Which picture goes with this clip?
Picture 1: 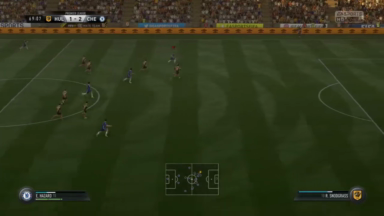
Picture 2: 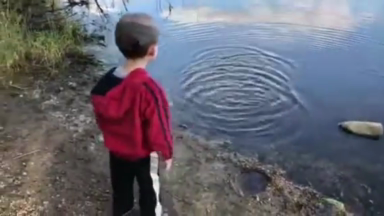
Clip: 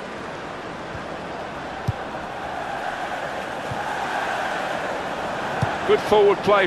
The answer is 1